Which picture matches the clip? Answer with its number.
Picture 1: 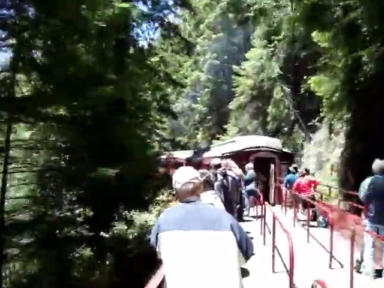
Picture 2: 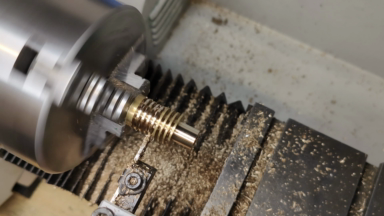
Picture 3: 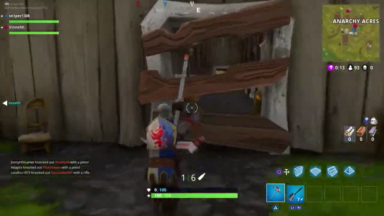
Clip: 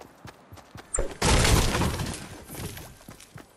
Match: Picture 3